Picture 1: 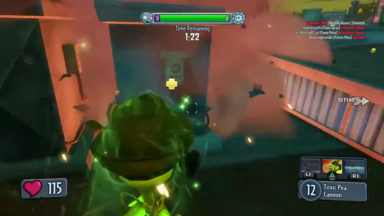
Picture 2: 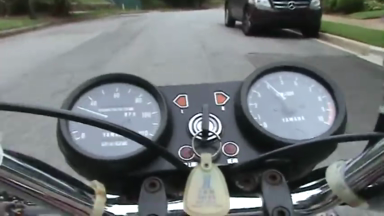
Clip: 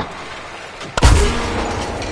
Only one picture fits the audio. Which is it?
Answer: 1